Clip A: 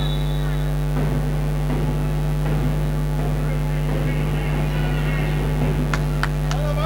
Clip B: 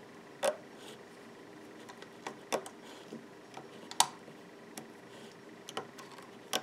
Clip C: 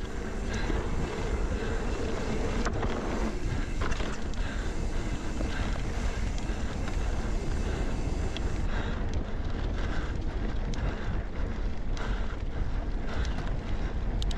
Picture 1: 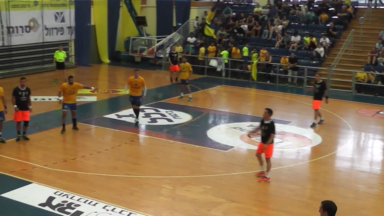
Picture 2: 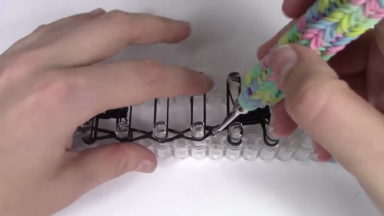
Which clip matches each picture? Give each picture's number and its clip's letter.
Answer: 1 A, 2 B